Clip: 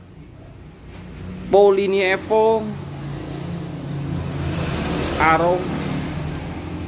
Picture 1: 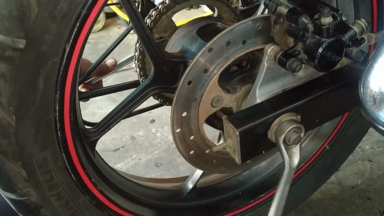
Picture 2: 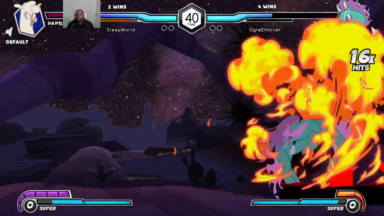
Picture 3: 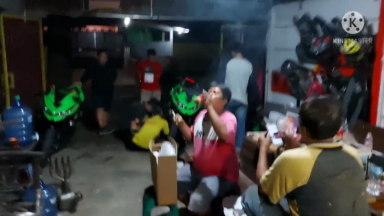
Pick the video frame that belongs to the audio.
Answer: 3